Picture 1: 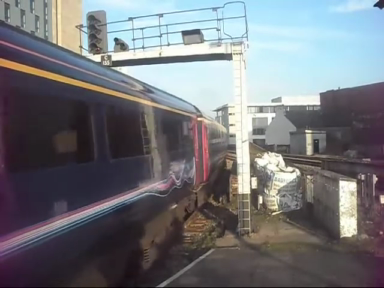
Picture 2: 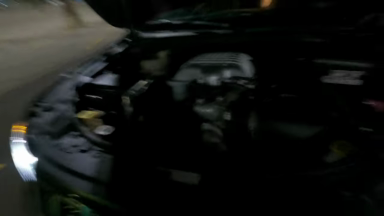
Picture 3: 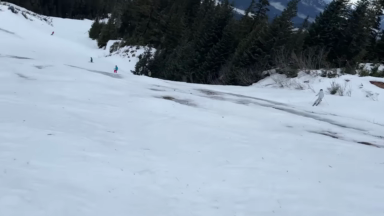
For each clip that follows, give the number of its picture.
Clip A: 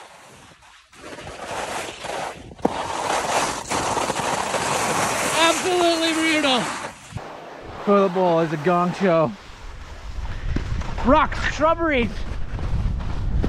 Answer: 3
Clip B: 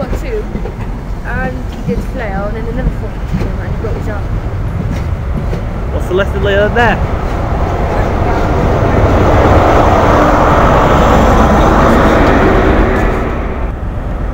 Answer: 1